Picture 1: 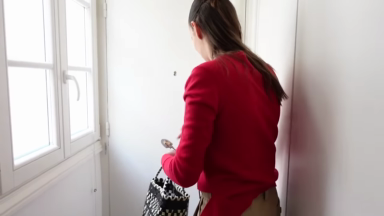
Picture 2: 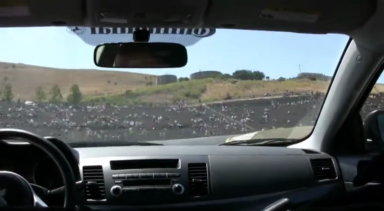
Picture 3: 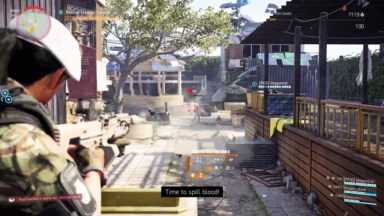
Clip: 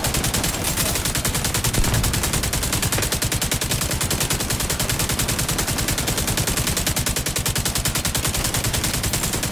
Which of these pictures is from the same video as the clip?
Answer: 3